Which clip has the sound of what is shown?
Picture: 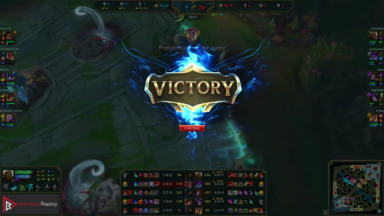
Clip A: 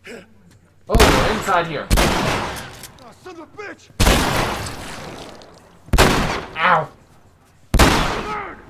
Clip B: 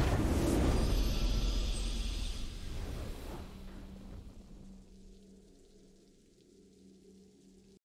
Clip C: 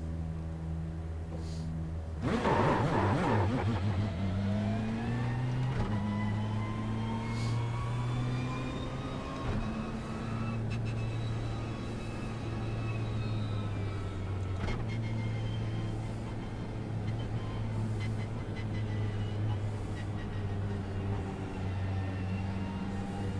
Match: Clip B